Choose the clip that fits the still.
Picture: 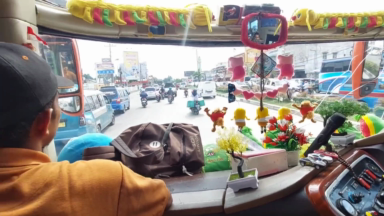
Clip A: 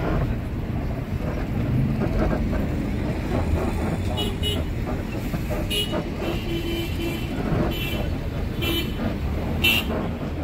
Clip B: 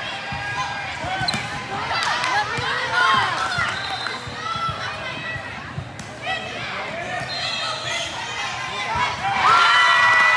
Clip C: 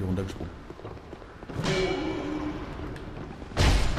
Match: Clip A